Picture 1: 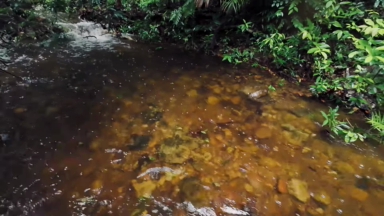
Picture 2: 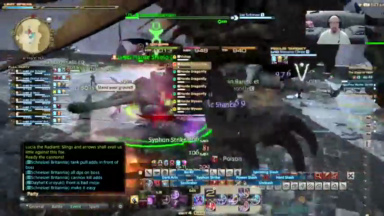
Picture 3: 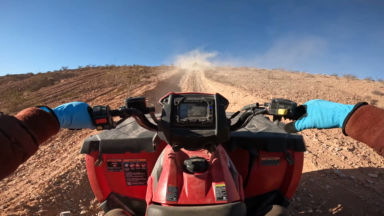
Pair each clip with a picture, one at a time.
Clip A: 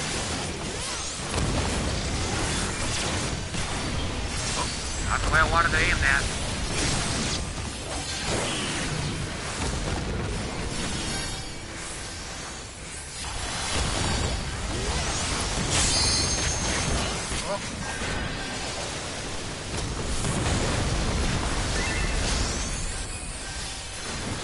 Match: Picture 2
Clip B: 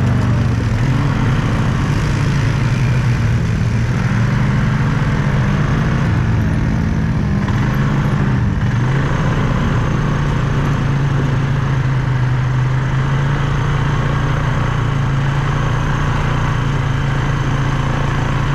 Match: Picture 3